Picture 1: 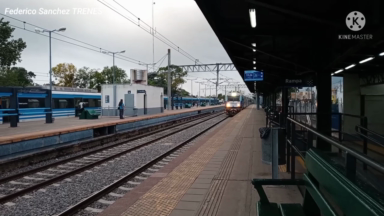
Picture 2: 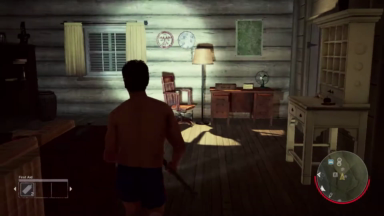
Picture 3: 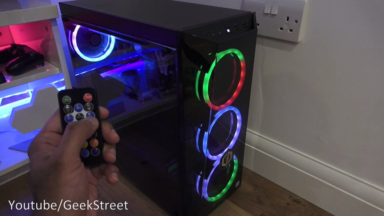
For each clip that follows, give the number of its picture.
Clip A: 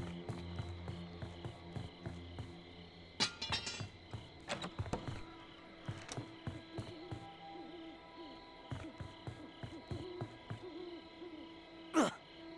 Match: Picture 2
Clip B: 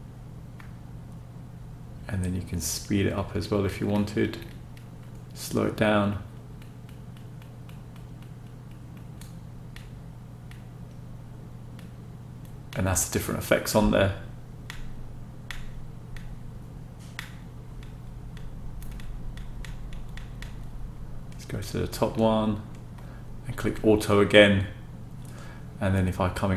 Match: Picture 3